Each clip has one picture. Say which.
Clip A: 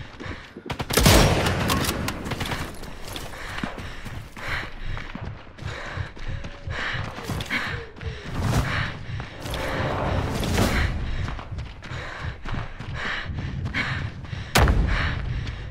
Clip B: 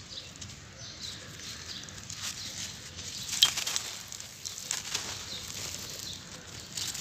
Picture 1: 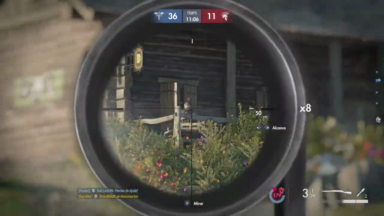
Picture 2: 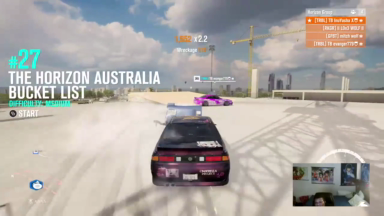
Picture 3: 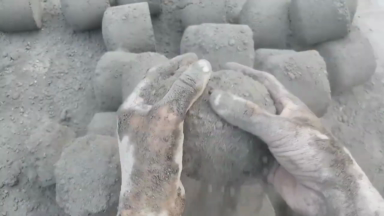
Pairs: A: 1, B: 3